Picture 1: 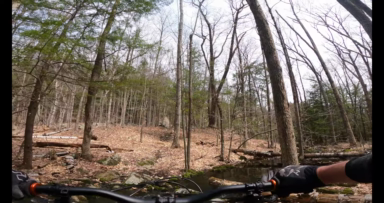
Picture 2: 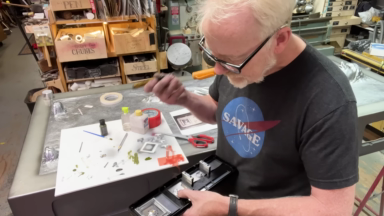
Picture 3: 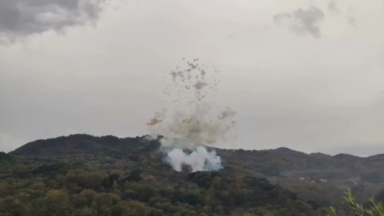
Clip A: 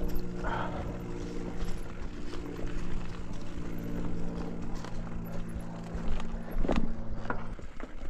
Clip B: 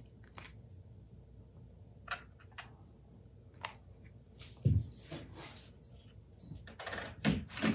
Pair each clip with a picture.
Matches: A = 1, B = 2